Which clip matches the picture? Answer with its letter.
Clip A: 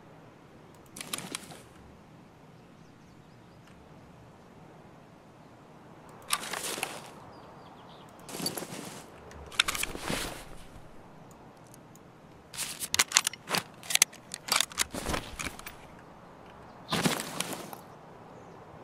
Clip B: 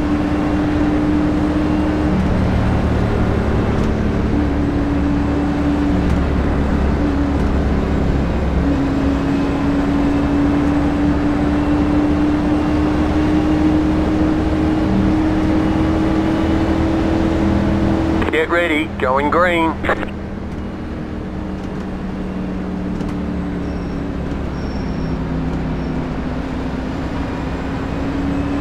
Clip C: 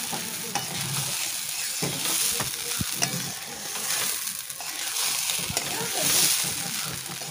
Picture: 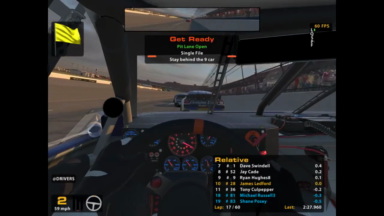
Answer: B